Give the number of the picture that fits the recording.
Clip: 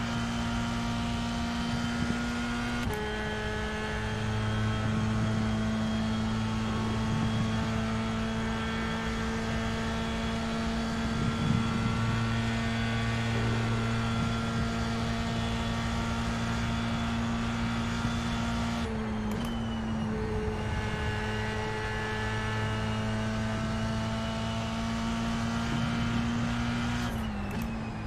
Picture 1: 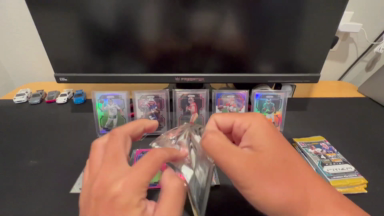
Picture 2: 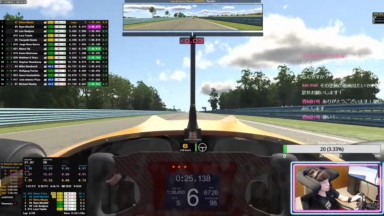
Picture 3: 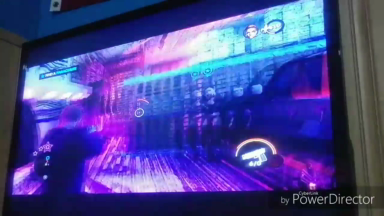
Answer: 2